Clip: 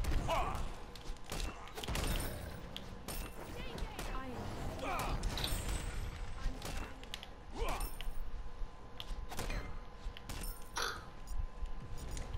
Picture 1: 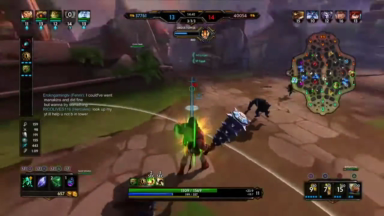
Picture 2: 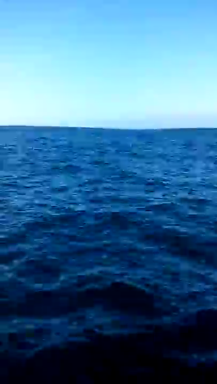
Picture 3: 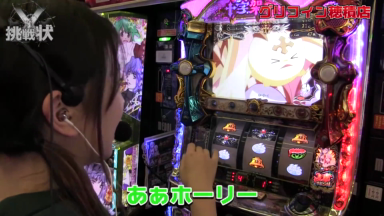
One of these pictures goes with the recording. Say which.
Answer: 1